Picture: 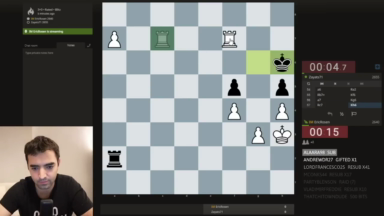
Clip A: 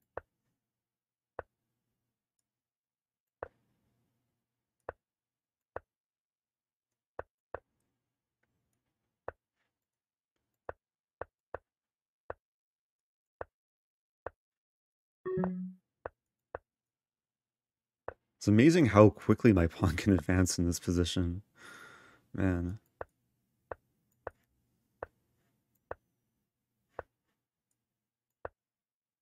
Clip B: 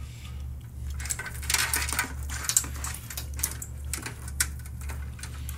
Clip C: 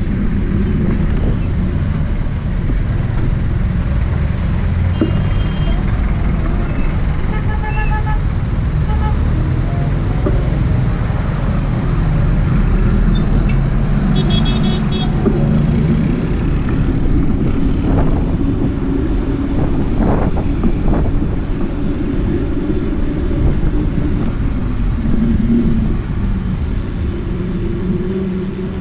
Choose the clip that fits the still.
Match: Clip A